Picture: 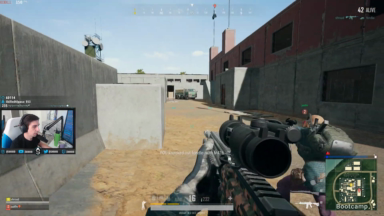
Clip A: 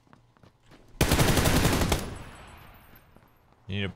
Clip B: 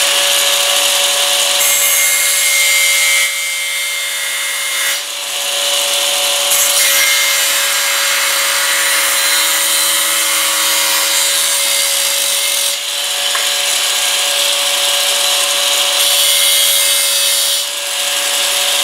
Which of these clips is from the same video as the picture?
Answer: A